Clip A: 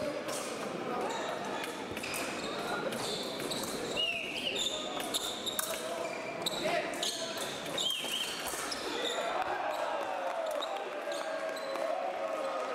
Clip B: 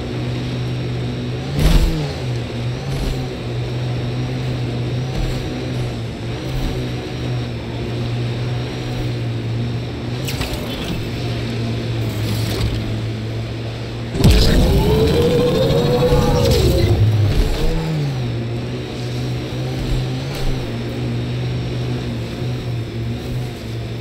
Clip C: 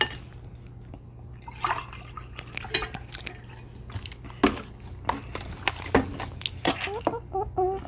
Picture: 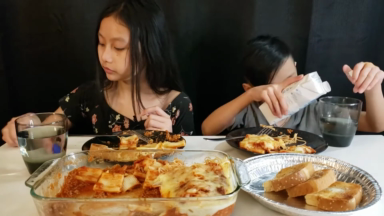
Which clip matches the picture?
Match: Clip C